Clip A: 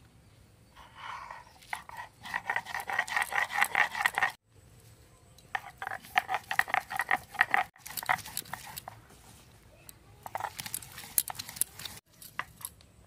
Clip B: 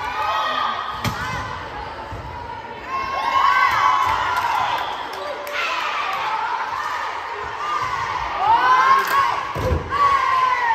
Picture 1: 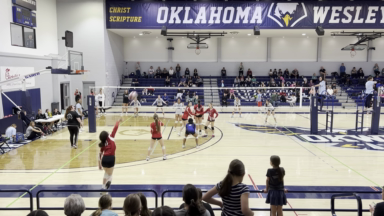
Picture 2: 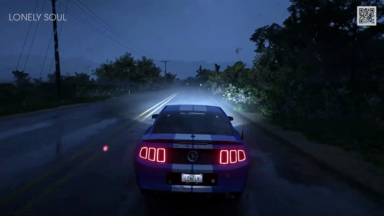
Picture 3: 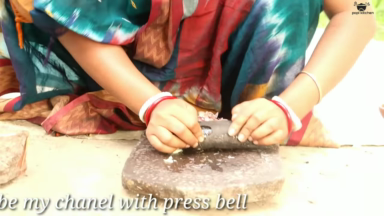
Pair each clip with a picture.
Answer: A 3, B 1